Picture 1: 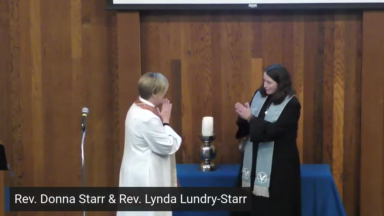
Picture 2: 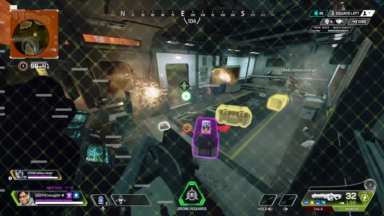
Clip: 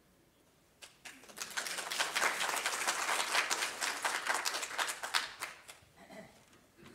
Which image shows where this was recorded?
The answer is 1